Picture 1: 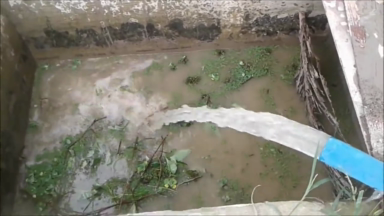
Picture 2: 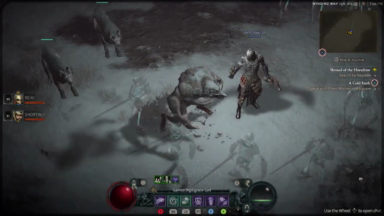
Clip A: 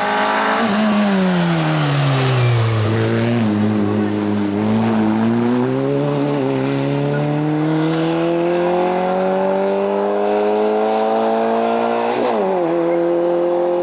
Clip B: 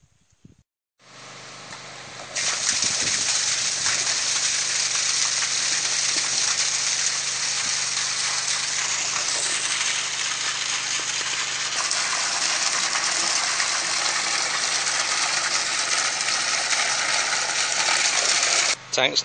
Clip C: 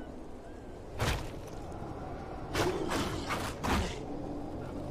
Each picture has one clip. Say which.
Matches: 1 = B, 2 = C